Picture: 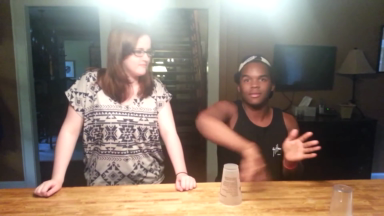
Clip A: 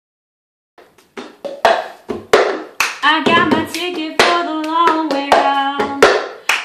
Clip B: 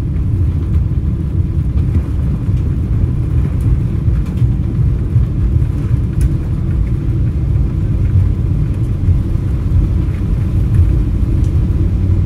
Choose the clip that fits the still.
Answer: A